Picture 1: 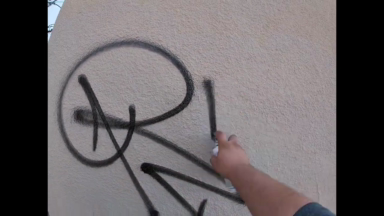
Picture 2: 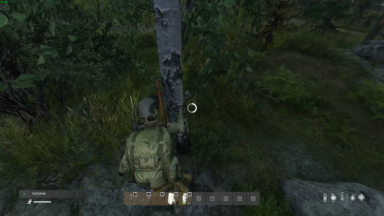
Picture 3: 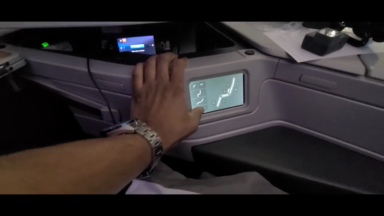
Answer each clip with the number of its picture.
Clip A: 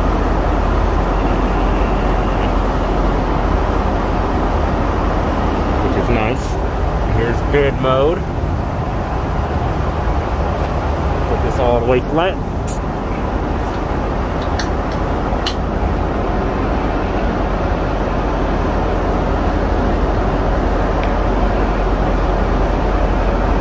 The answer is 3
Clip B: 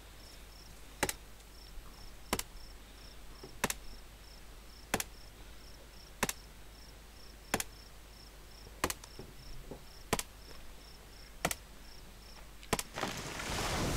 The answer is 2